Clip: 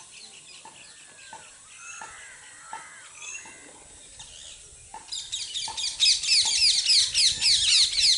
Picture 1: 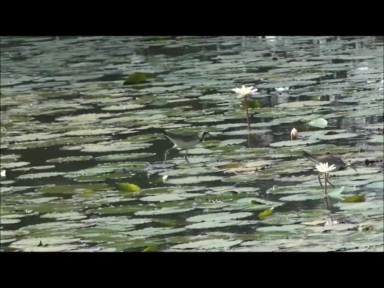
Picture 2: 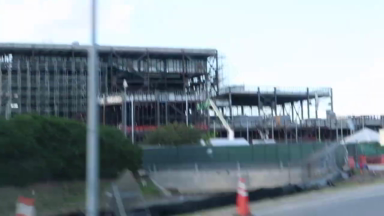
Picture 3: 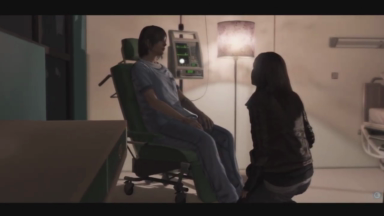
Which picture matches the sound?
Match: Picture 1